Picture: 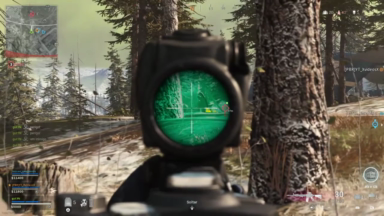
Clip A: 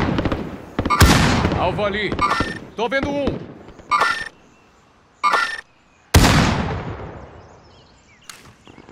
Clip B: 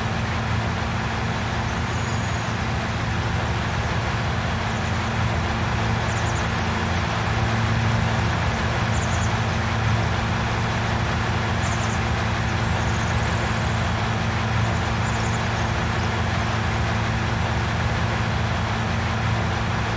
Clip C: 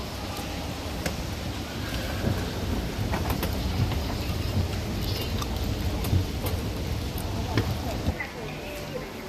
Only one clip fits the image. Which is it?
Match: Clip A